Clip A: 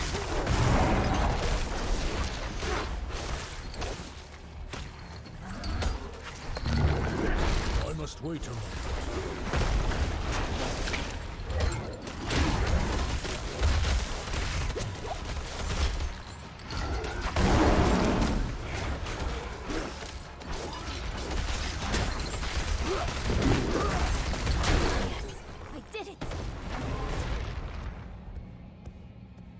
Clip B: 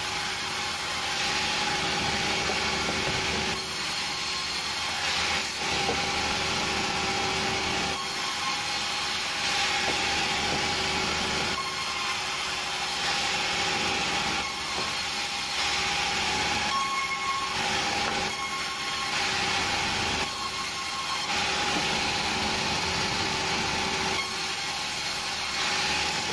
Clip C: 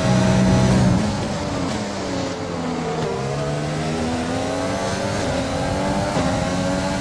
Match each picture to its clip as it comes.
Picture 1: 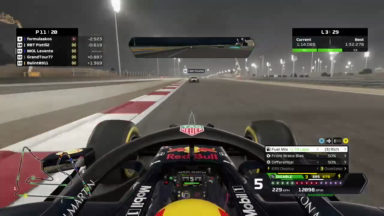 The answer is C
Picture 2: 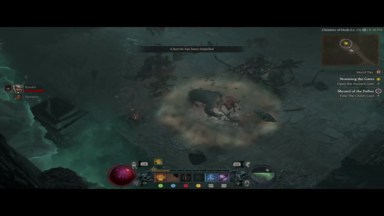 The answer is A